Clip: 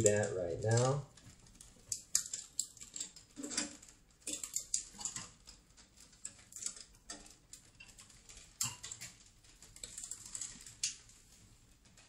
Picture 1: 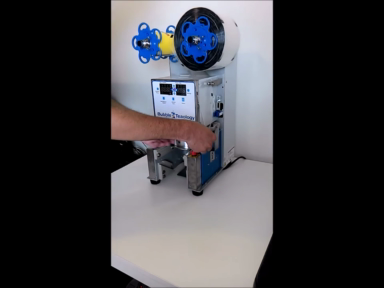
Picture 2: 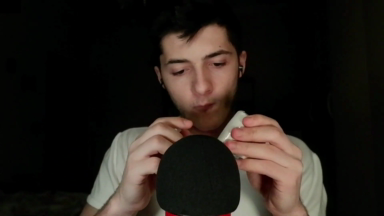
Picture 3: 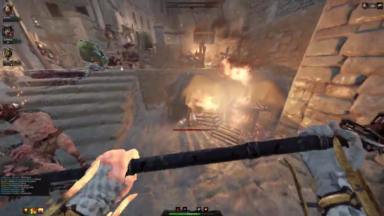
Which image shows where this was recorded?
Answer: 1